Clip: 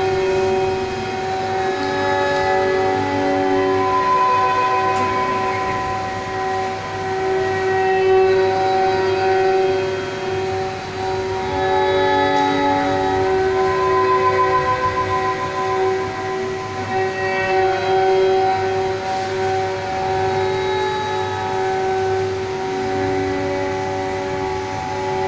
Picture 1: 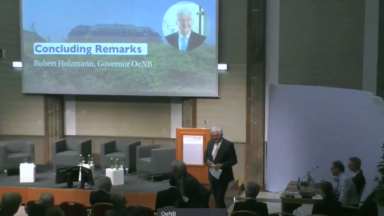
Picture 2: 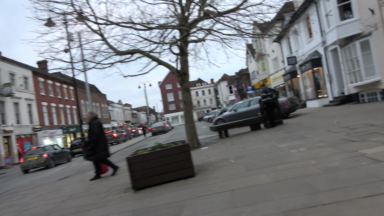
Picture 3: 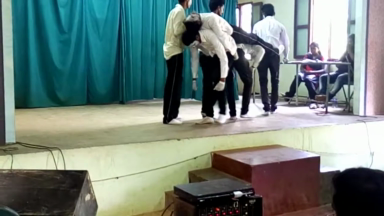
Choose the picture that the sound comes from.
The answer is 3